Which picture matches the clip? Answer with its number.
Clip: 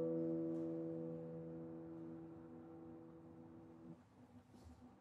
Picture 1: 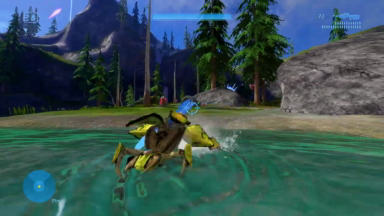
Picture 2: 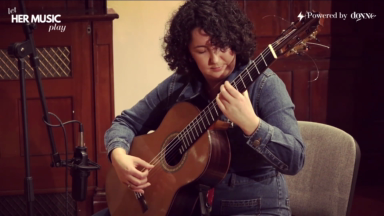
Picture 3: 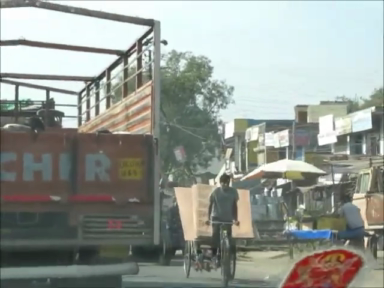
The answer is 2